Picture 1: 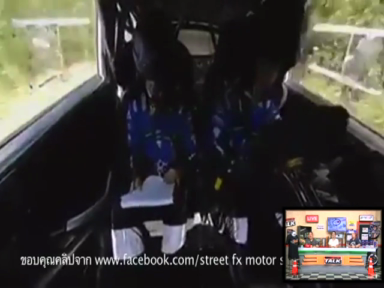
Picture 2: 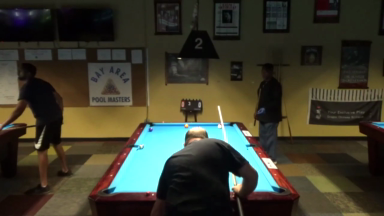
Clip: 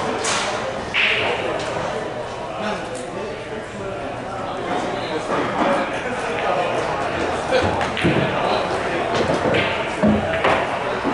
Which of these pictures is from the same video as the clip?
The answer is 2